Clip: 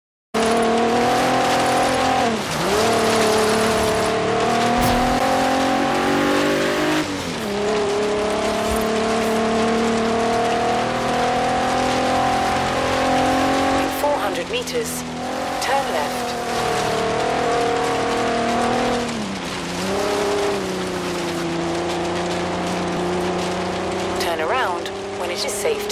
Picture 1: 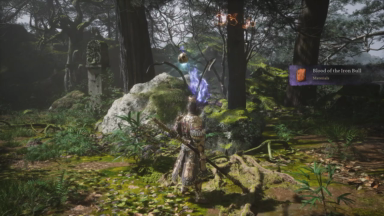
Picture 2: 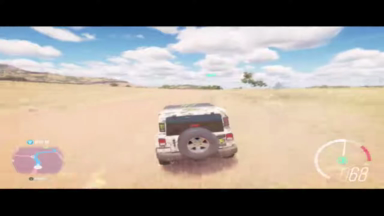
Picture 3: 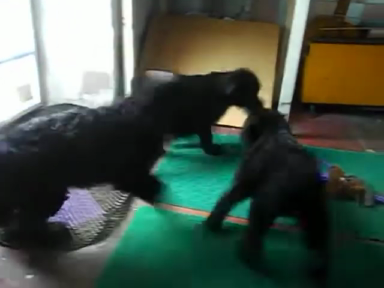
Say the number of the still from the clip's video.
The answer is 2